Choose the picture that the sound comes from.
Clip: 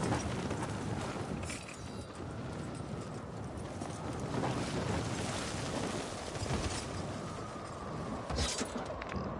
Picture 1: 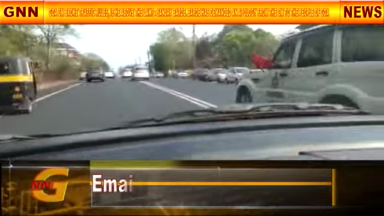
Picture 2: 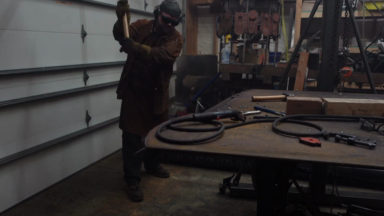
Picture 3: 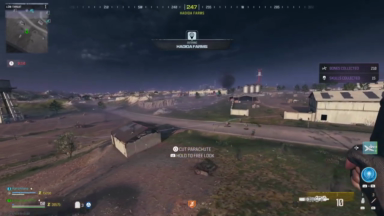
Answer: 3